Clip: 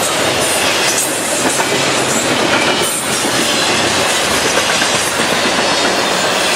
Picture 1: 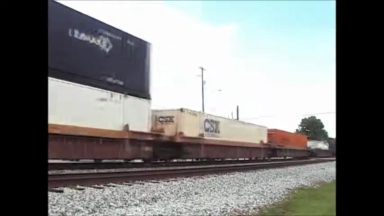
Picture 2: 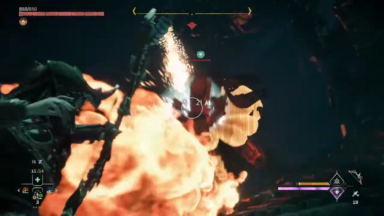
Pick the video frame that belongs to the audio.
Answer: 1